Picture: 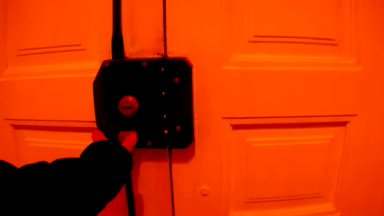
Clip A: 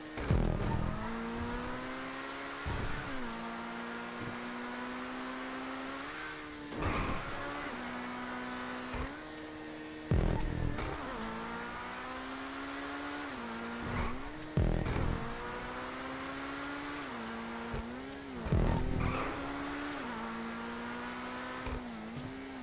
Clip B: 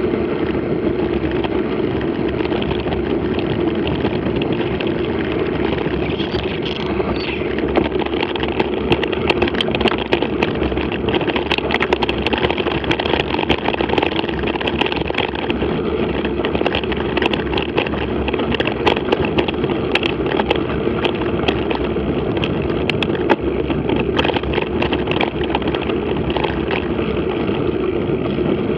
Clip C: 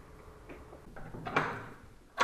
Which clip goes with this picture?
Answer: C